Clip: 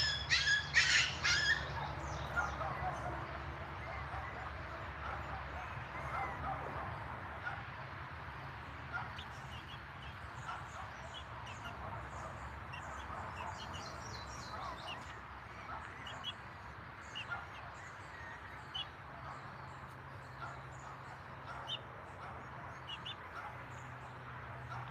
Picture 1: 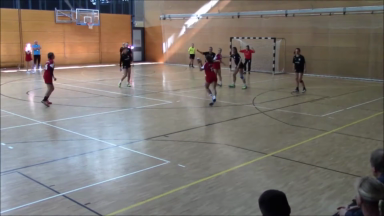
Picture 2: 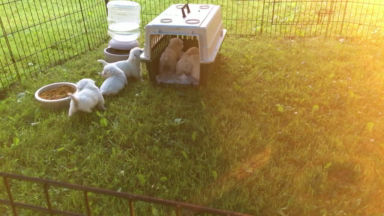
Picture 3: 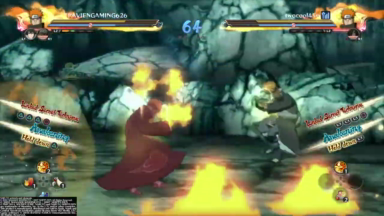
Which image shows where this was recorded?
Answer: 2